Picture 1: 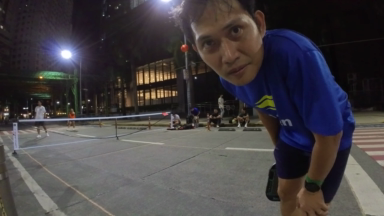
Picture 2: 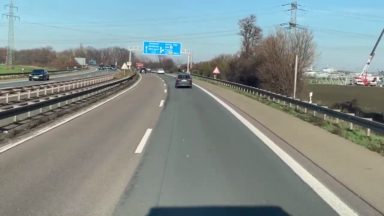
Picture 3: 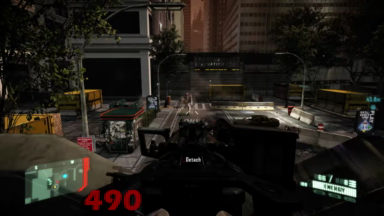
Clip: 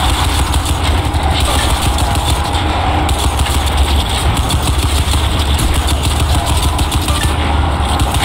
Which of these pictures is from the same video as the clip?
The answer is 3